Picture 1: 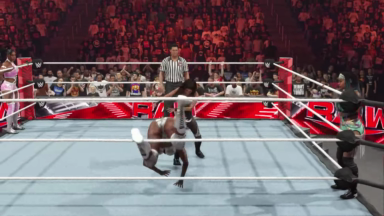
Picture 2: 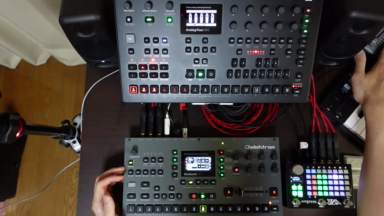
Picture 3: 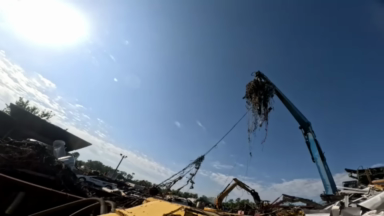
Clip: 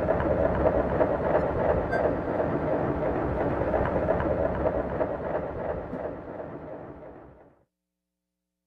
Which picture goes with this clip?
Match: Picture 2